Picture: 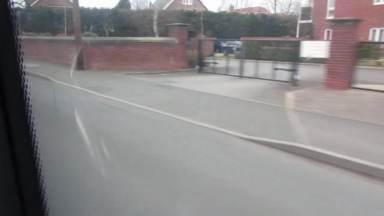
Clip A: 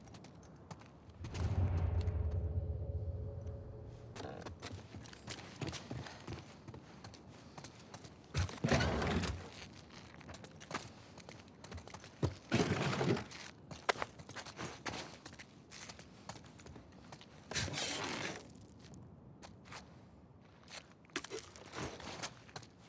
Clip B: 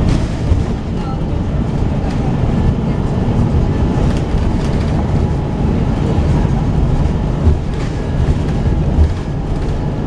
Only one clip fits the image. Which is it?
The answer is B